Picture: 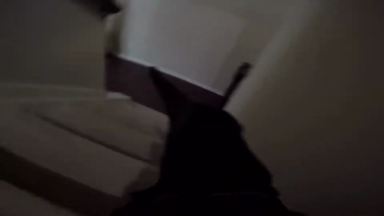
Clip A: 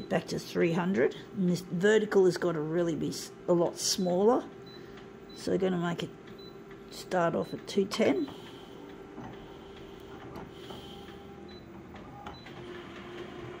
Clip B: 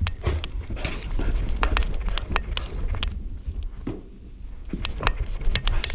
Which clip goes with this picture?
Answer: B